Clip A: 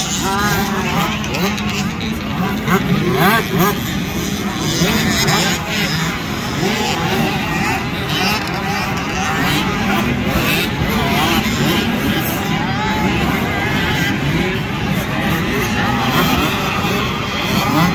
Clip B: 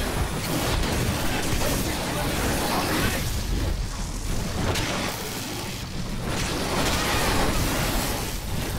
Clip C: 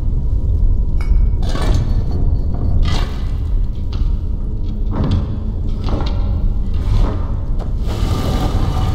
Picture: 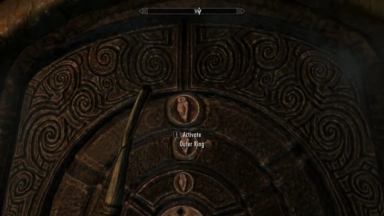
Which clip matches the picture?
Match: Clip C